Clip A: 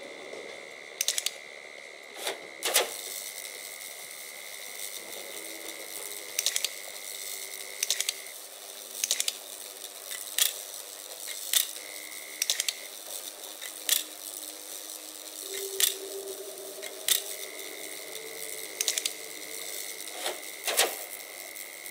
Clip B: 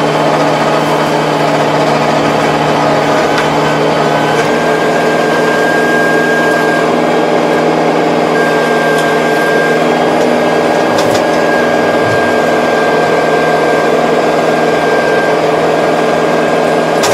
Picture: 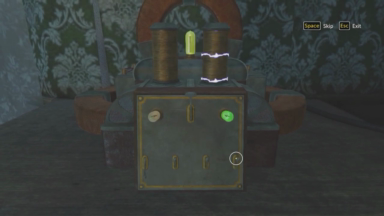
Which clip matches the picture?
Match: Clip A